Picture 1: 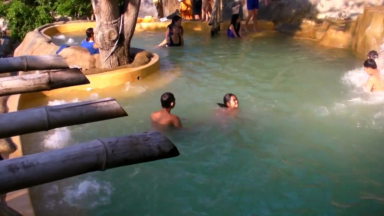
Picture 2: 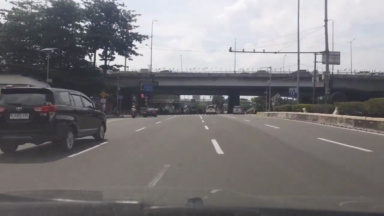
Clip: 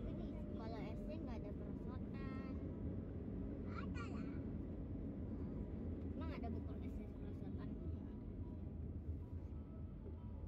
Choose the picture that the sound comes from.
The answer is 2